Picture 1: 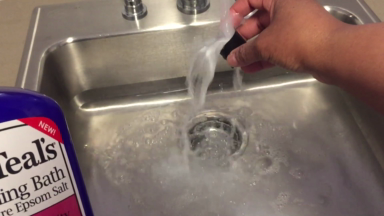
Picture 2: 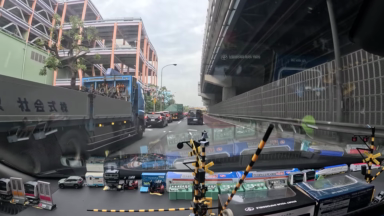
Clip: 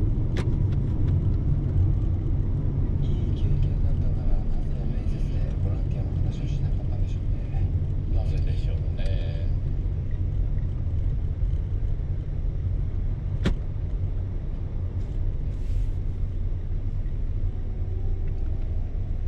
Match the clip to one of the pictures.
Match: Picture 2